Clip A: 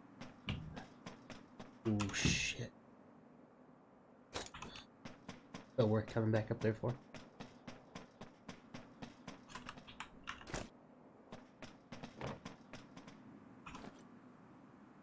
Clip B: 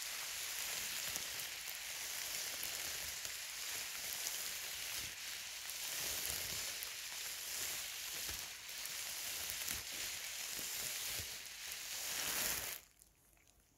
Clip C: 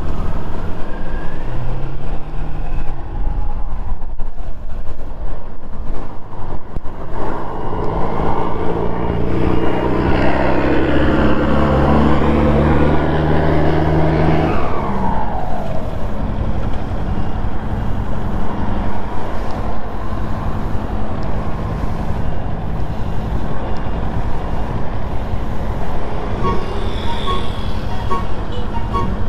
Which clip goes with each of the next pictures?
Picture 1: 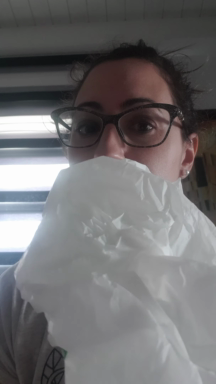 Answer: B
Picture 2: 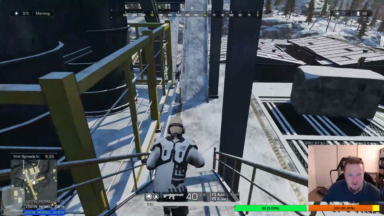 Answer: A